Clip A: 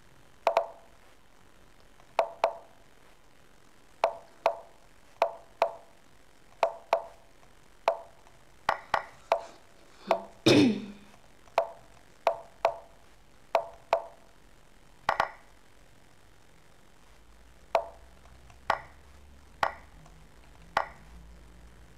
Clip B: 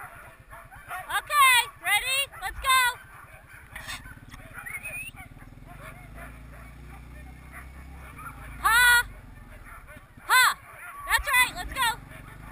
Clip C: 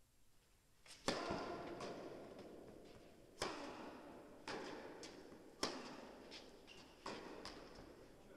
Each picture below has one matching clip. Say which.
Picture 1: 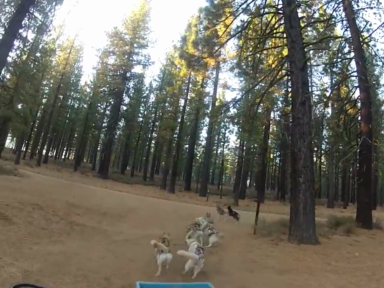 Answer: B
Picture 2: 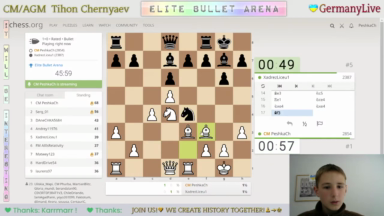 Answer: A